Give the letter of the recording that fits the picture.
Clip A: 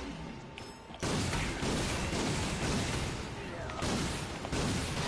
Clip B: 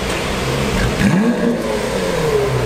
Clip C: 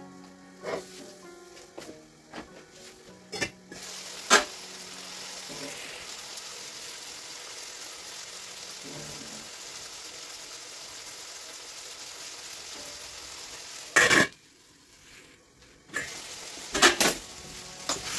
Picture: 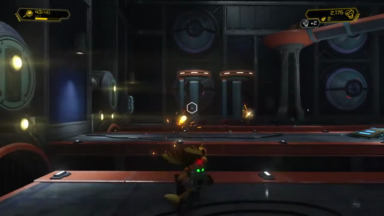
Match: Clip A